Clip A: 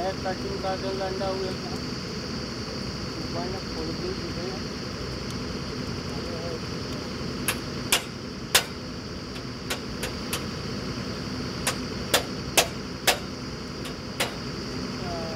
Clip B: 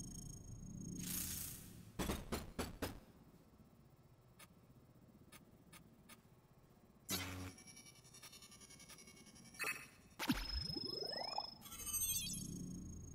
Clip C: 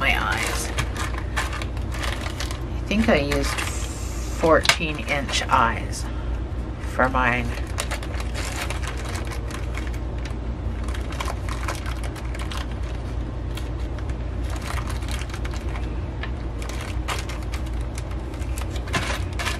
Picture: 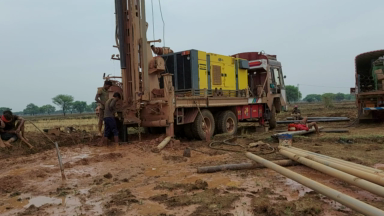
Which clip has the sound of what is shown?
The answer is A